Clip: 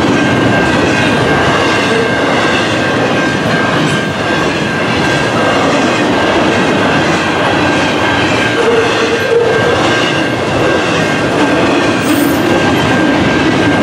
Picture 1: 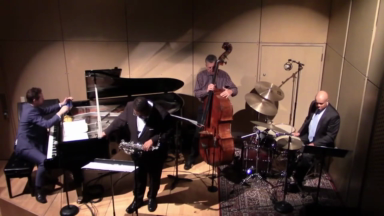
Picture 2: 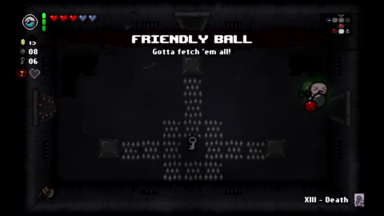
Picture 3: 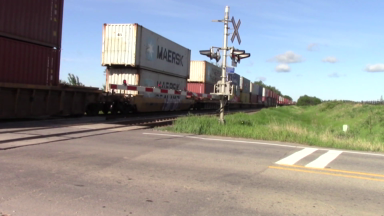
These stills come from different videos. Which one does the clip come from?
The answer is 3